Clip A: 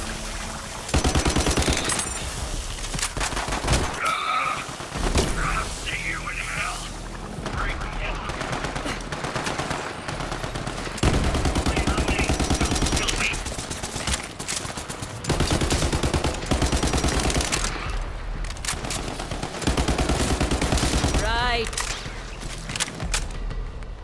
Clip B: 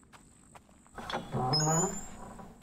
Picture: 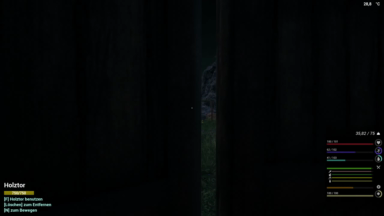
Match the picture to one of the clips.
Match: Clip B